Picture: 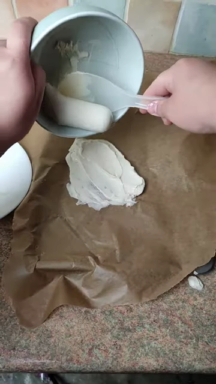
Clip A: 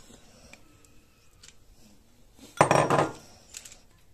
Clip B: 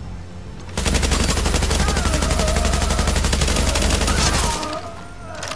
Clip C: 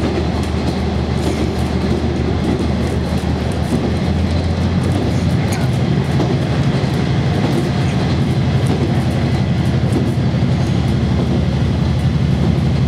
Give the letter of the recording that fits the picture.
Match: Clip A